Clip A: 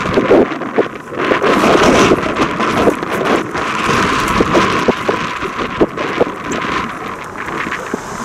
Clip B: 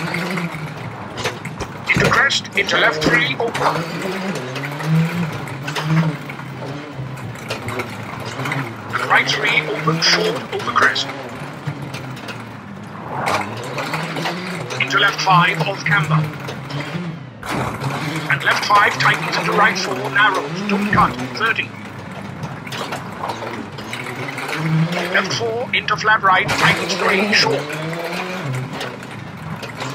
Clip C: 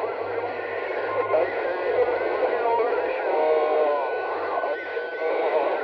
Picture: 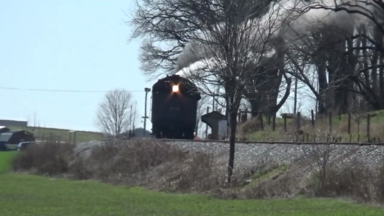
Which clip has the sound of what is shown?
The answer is A